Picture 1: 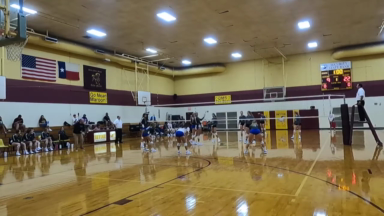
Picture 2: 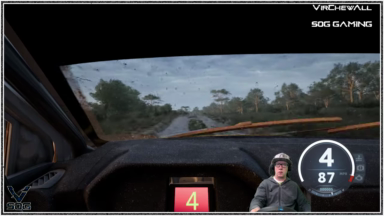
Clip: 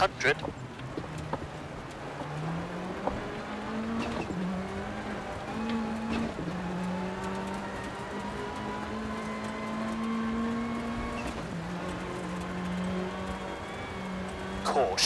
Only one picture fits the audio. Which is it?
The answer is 2